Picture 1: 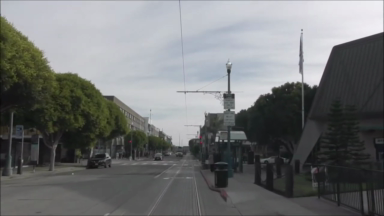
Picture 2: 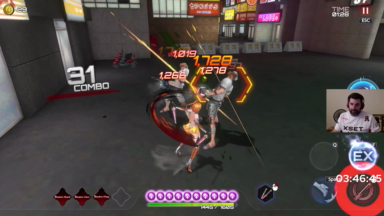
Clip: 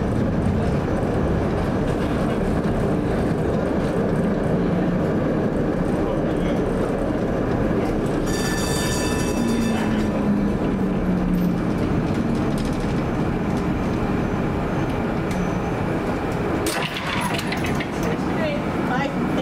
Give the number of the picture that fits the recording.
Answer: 1